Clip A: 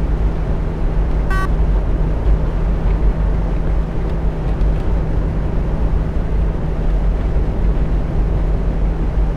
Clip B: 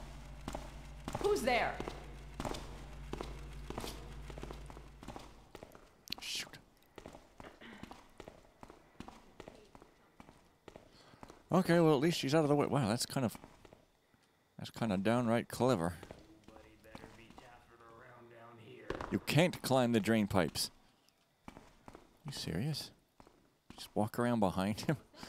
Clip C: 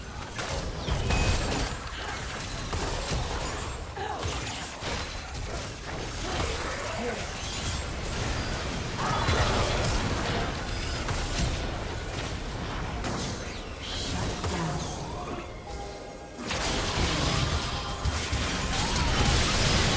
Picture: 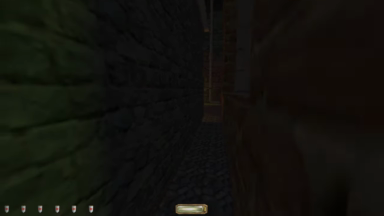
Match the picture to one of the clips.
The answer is B